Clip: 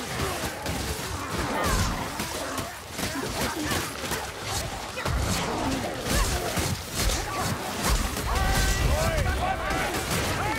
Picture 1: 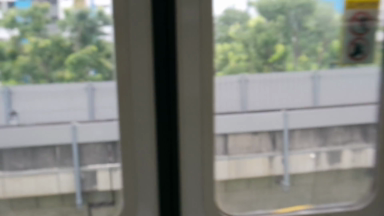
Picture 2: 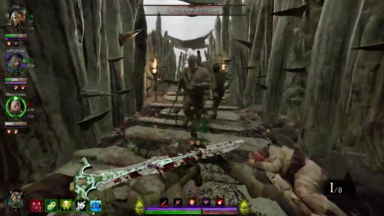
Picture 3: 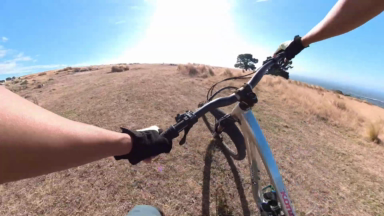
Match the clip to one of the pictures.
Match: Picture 2